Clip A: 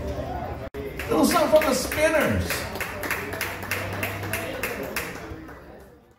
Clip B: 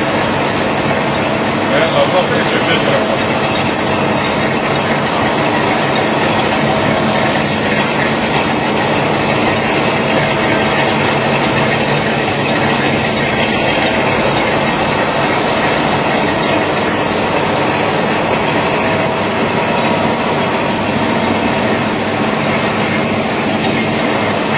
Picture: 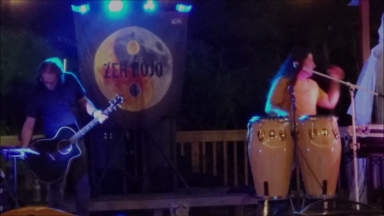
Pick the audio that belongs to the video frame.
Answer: A